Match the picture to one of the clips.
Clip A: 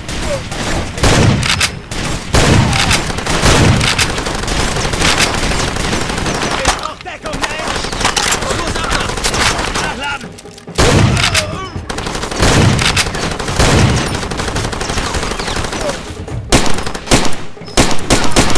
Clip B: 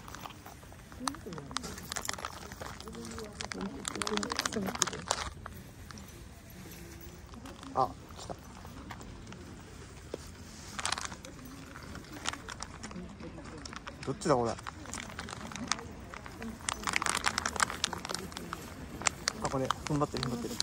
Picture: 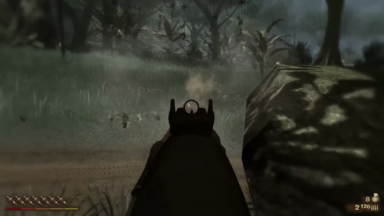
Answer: A